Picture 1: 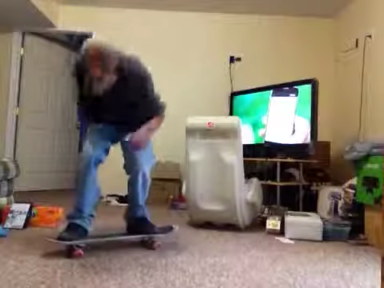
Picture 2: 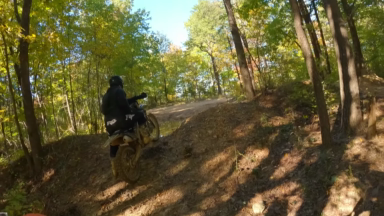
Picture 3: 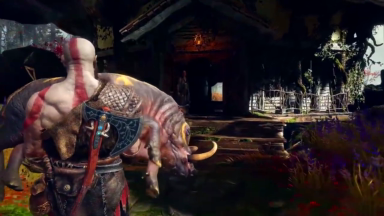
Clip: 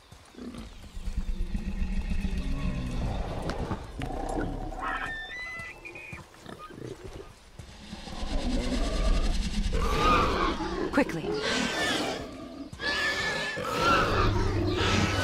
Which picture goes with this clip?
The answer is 3